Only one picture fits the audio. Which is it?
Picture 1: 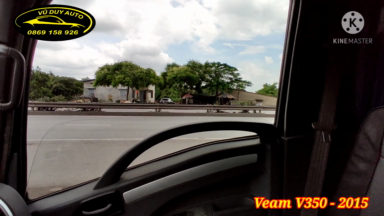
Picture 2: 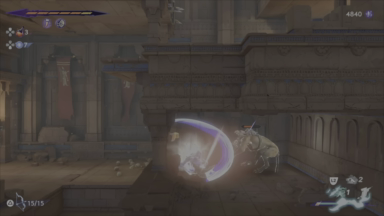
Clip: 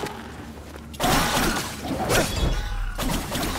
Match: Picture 2